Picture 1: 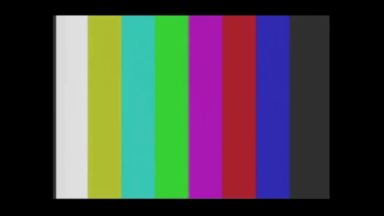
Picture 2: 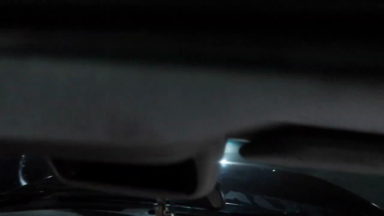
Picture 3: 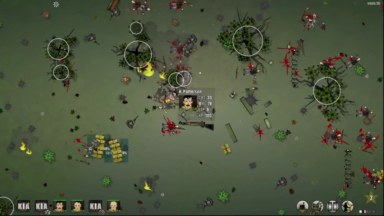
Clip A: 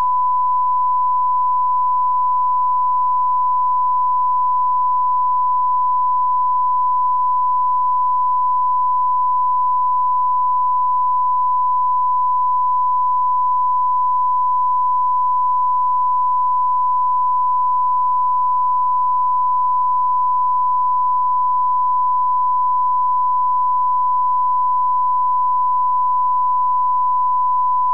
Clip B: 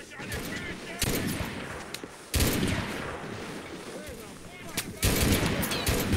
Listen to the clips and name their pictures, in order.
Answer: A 1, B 3